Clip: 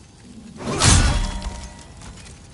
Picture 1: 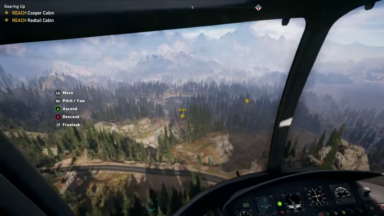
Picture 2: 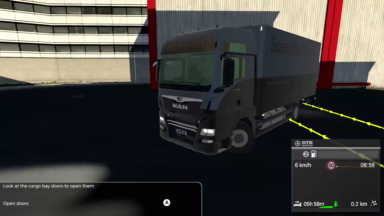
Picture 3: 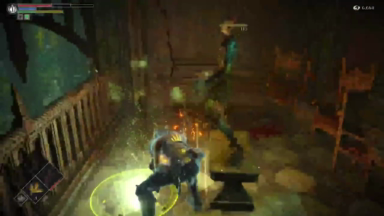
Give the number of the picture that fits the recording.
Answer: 3